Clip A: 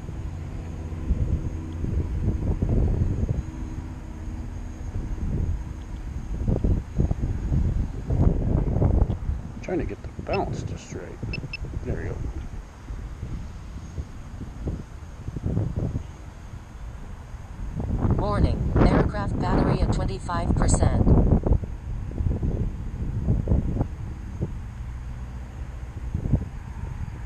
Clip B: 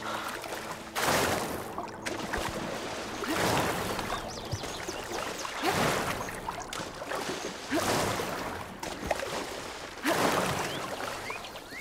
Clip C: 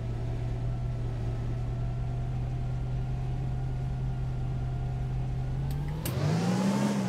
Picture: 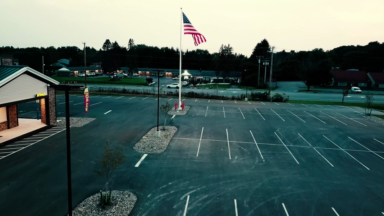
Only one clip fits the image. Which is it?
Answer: A